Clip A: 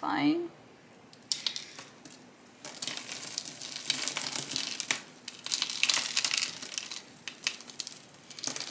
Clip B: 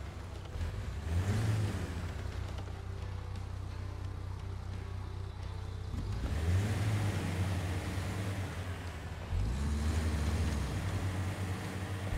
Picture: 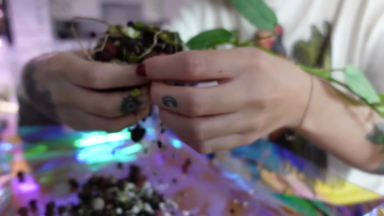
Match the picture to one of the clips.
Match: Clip A